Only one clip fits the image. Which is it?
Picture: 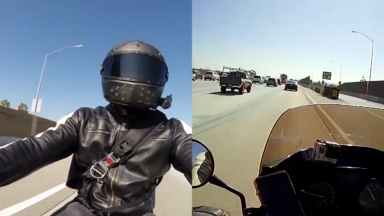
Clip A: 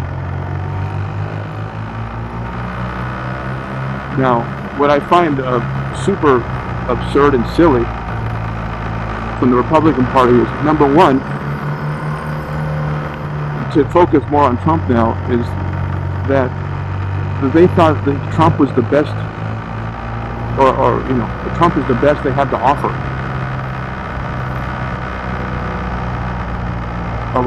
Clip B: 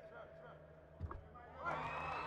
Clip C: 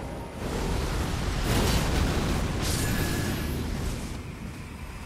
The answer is A